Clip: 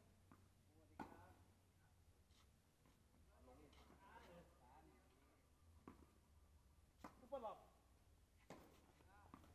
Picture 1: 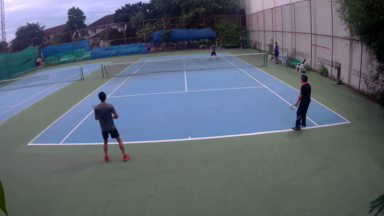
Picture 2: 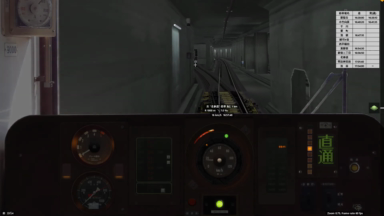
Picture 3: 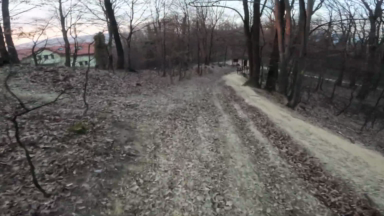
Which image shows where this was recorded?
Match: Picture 1